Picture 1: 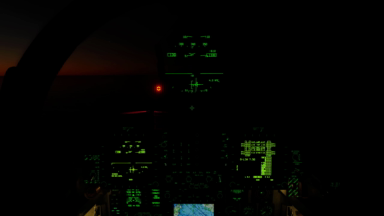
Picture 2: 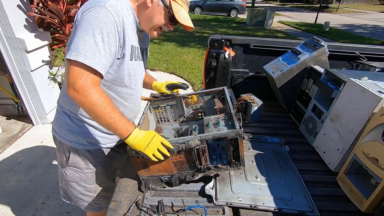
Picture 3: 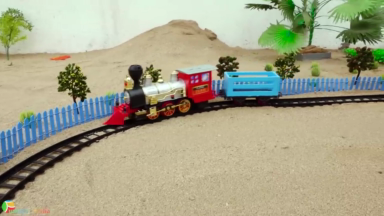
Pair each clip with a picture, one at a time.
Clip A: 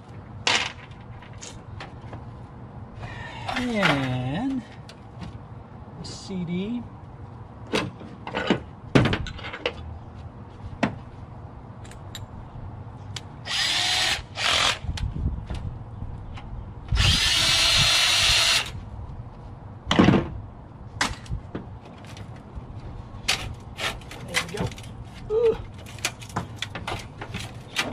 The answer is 2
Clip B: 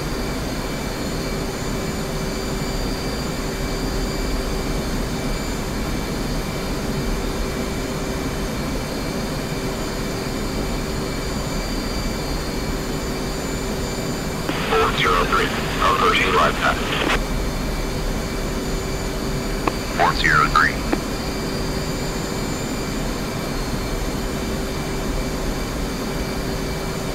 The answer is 1